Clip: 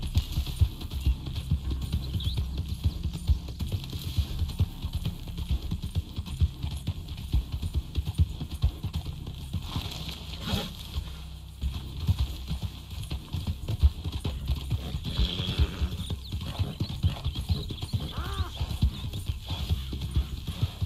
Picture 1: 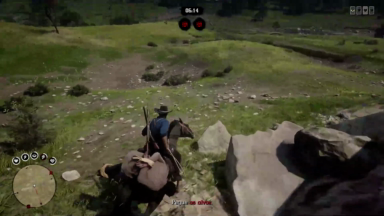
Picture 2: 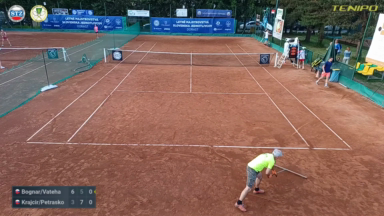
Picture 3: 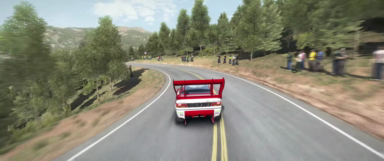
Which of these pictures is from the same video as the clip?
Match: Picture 1